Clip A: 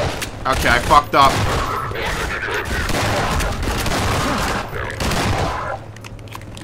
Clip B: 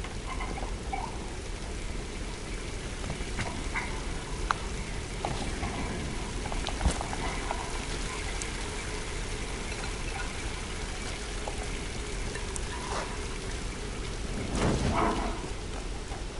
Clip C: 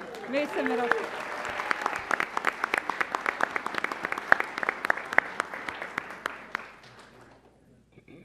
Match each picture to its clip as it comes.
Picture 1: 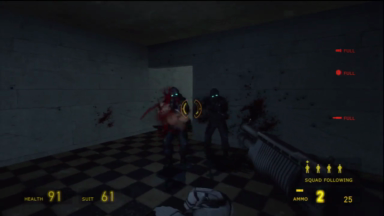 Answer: A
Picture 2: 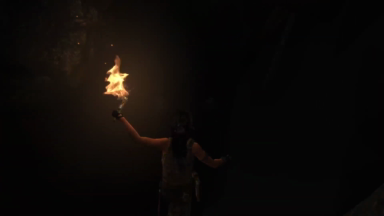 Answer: B